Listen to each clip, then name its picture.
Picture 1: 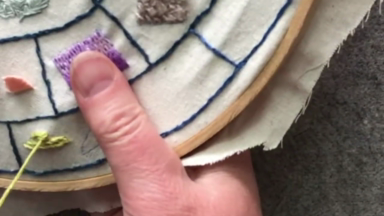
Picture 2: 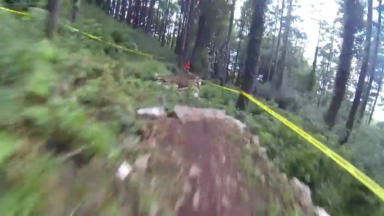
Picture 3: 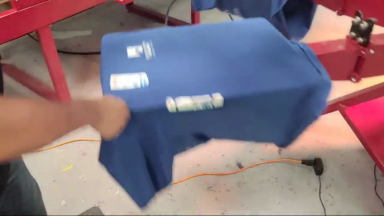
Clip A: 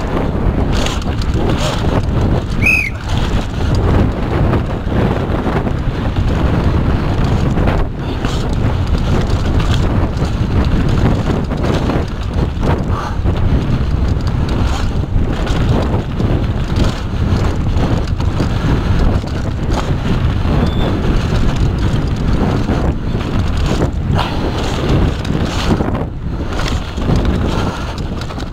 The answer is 2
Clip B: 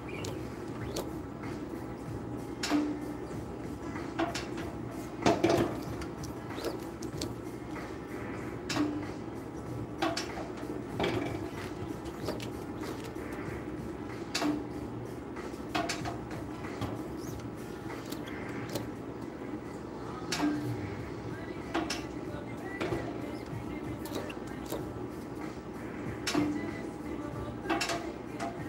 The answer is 3